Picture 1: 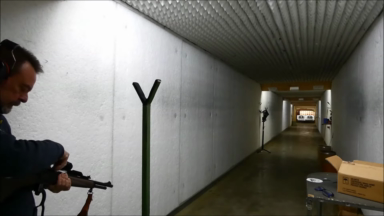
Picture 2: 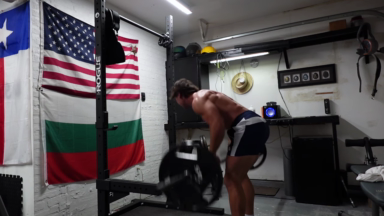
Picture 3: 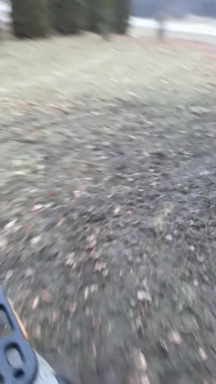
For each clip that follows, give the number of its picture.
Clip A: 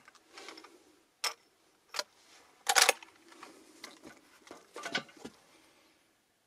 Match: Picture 1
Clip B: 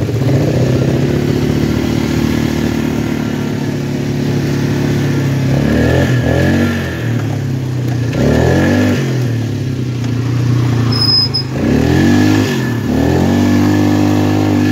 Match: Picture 3